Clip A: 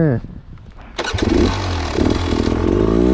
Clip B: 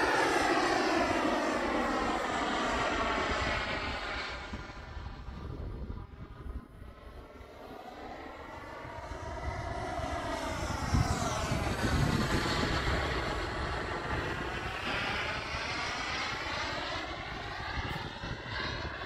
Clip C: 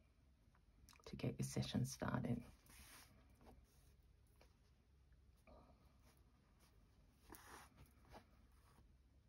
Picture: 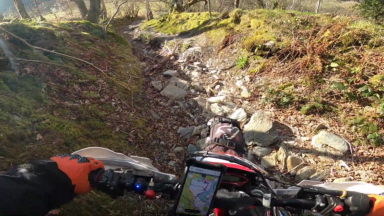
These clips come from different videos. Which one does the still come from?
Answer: A